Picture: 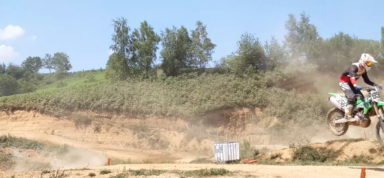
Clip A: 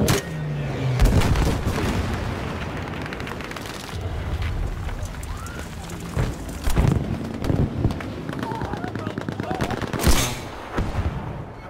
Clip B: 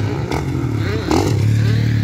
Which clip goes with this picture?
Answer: B